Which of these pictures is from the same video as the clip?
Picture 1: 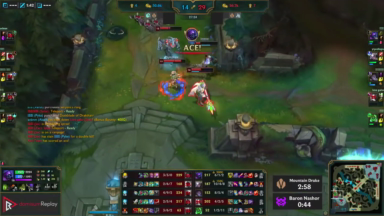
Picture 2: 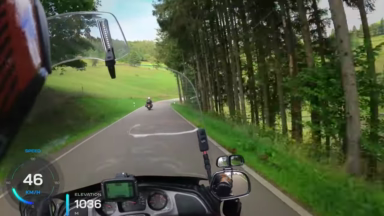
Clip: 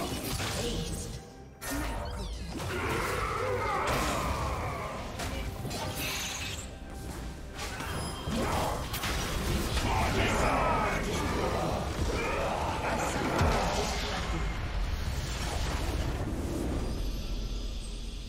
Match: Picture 1